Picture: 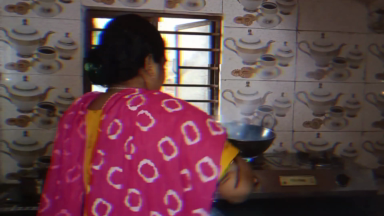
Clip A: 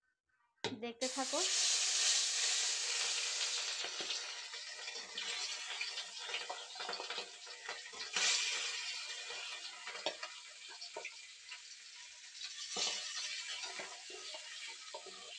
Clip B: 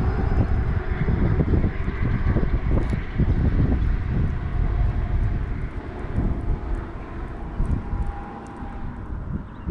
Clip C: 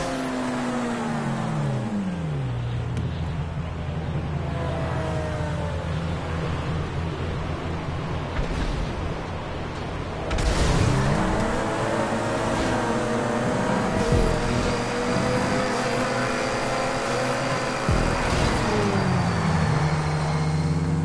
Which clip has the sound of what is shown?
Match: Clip A